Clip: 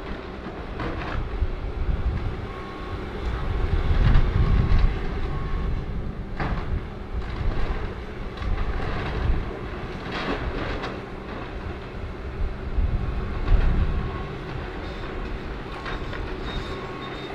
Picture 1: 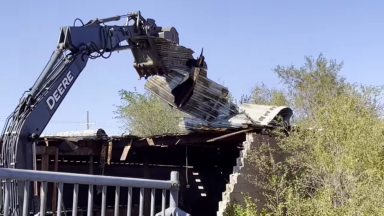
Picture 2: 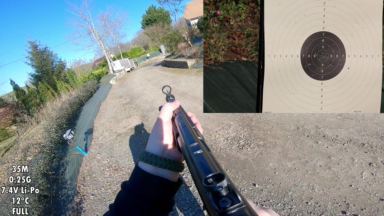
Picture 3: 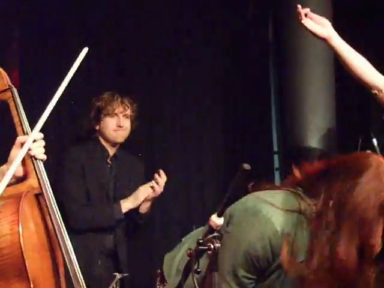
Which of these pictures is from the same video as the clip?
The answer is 1